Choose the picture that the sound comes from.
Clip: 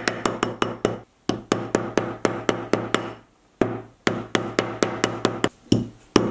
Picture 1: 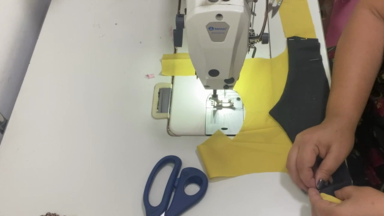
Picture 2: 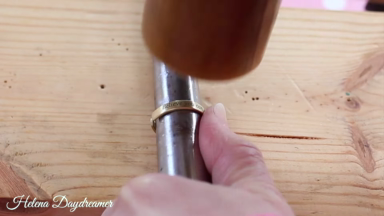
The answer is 2